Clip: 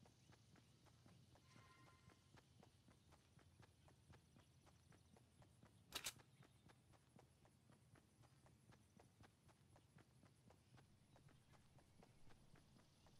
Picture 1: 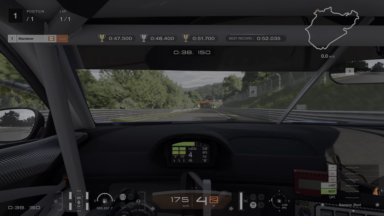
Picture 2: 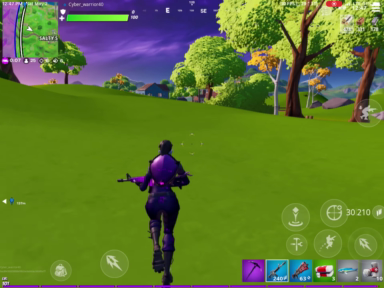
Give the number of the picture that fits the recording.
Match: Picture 2